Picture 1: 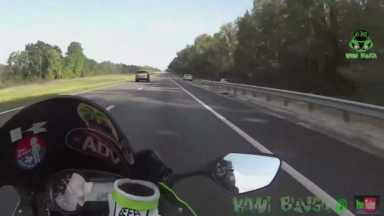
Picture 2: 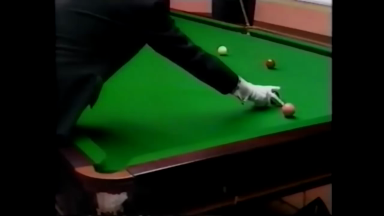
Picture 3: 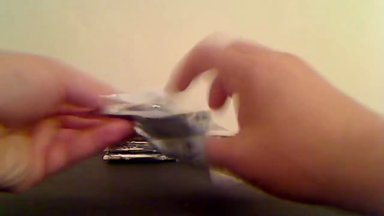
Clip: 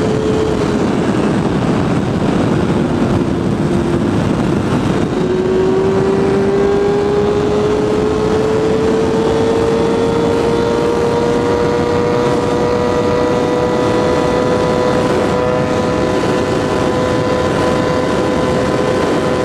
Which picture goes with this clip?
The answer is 1